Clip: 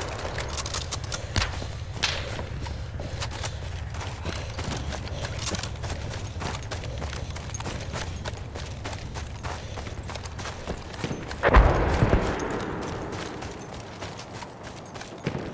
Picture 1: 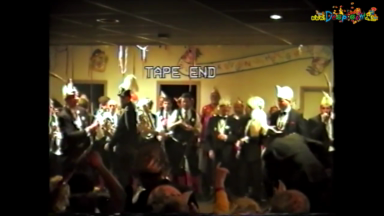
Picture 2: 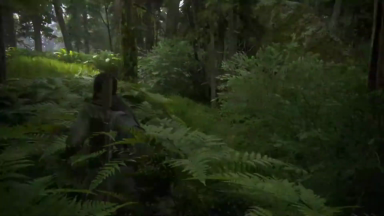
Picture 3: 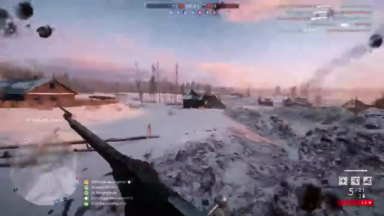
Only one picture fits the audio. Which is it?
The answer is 3